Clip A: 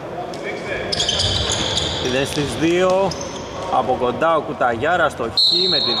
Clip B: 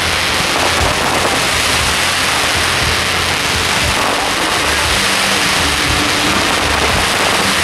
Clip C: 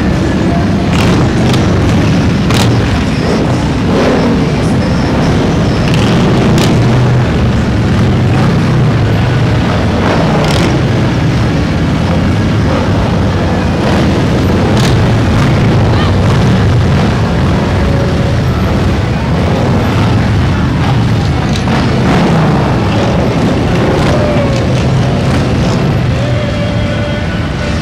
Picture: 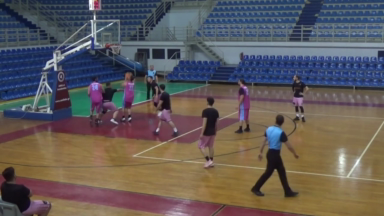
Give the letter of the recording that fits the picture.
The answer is A